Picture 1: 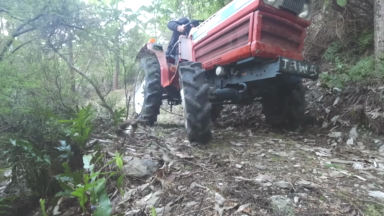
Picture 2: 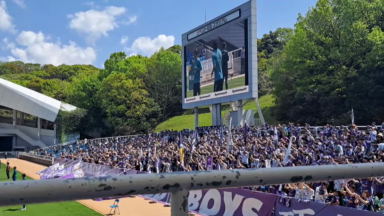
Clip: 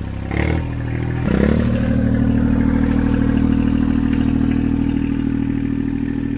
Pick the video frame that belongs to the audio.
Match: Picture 1